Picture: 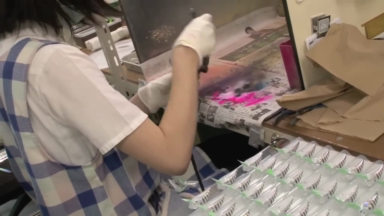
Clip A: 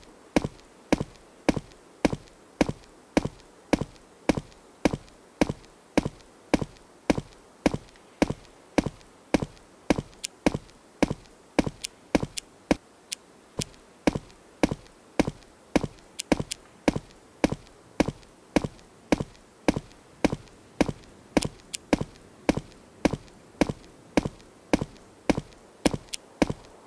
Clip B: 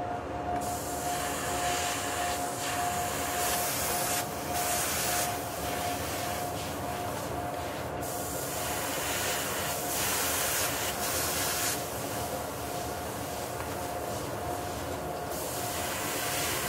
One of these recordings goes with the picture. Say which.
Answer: B